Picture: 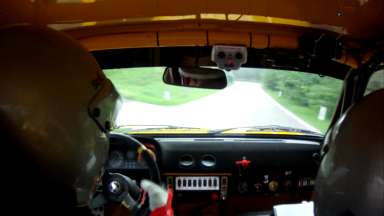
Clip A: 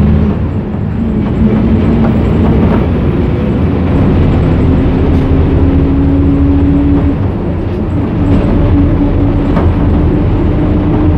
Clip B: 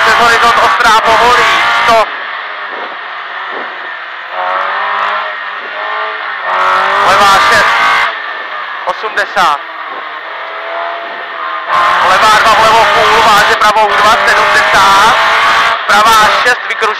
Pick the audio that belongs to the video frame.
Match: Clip B